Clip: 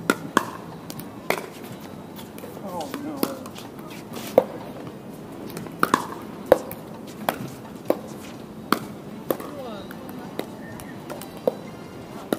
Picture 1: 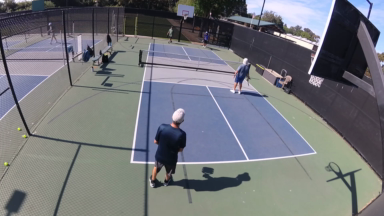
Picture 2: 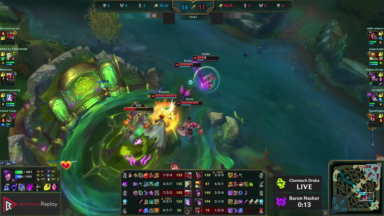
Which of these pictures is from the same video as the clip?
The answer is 1